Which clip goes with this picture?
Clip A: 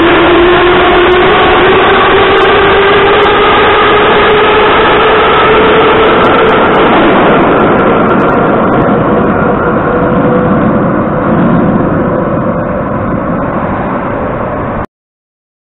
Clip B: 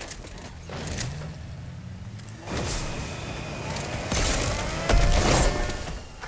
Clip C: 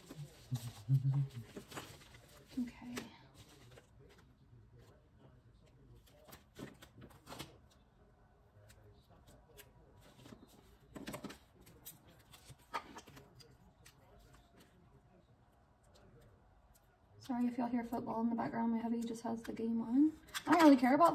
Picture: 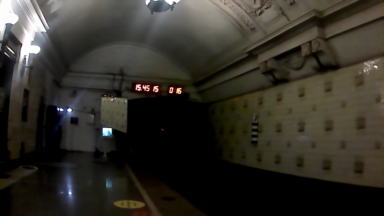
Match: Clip A